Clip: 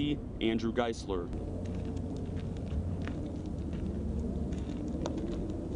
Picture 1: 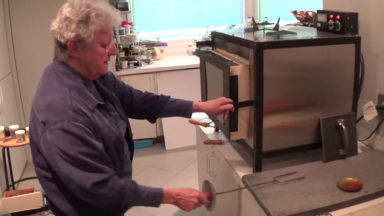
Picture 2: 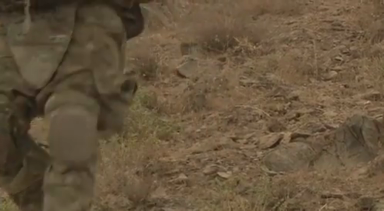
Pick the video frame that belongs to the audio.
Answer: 2